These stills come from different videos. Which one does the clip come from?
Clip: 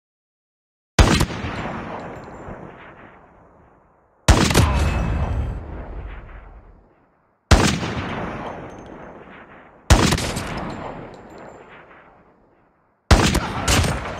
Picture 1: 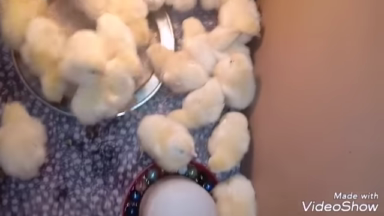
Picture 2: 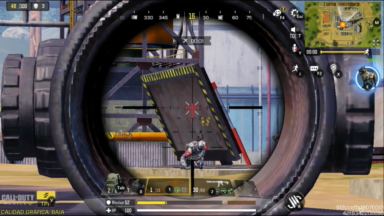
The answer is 2